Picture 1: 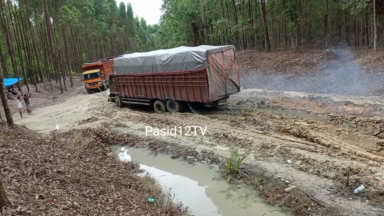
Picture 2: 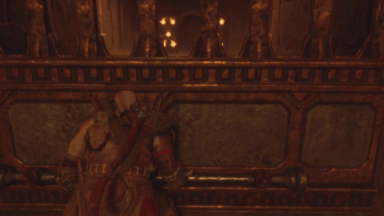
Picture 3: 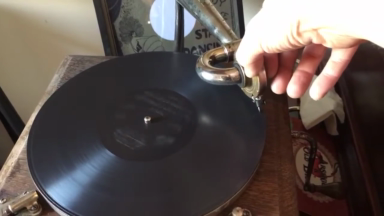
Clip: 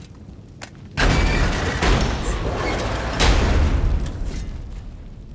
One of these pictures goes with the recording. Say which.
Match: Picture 2